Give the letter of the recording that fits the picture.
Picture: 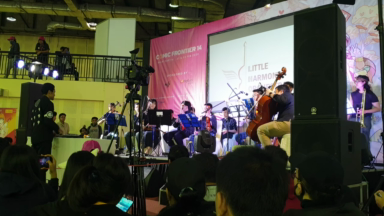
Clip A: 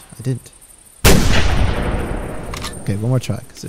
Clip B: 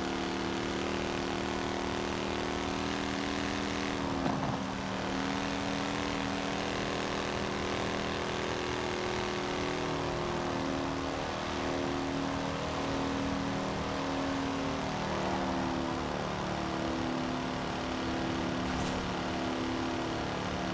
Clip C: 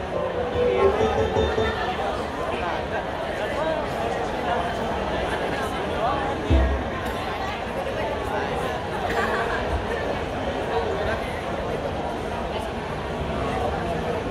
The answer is C